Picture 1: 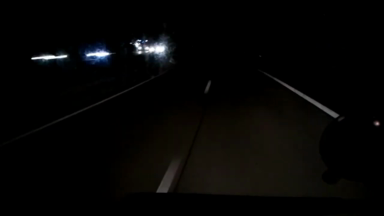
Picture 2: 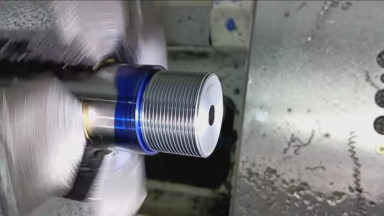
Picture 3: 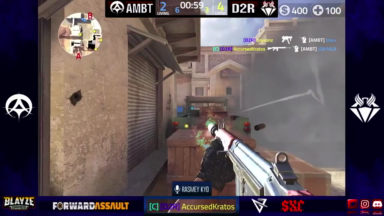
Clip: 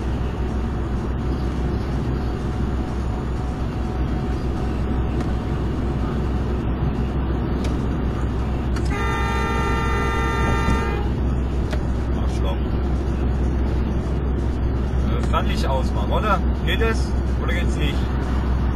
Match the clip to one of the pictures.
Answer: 1